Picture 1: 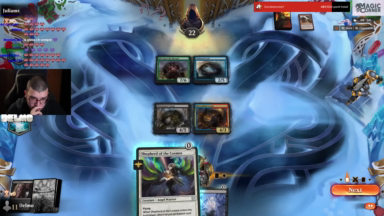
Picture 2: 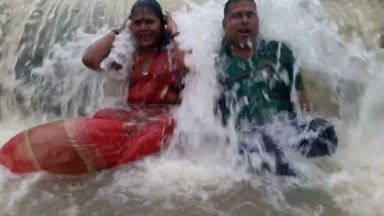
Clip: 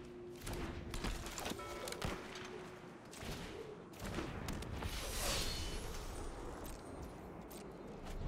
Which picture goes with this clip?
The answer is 1